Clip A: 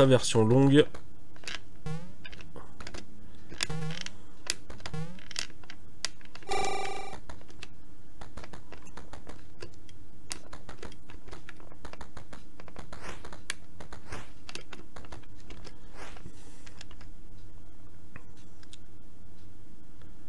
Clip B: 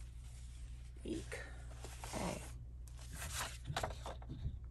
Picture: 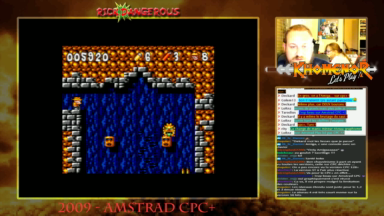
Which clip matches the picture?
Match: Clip A